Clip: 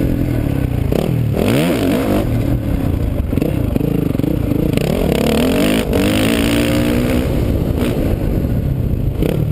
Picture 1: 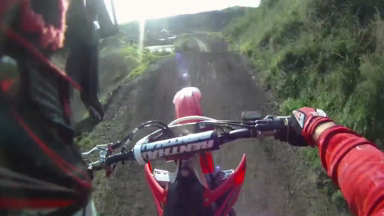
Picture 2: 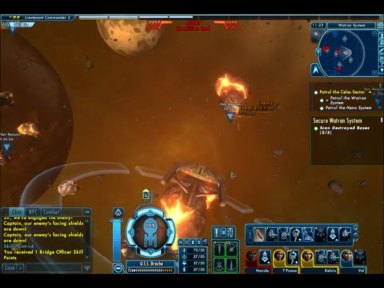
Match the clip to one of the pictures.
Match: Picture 1